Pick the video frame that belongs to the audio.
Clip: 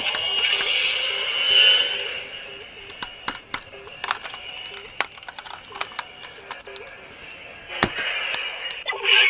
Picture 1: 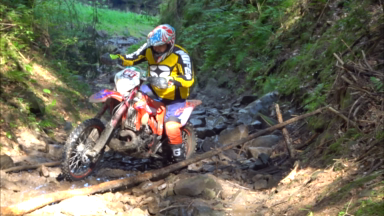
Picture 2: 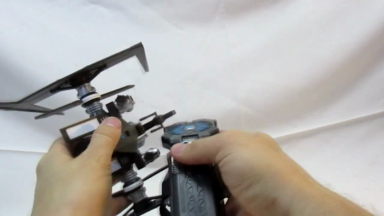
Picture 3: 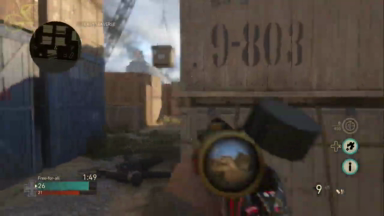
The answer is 2